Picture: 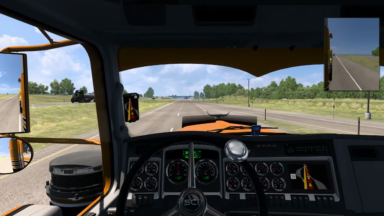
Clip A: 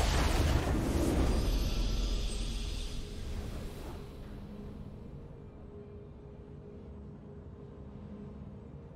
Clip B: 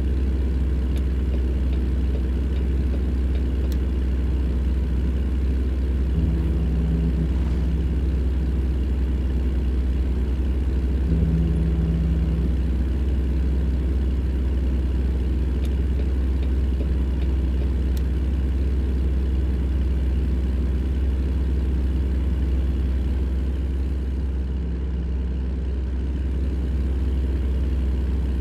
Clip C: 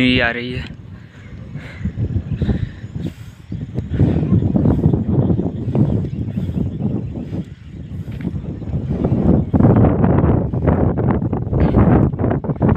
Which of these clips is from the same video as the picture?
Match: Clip B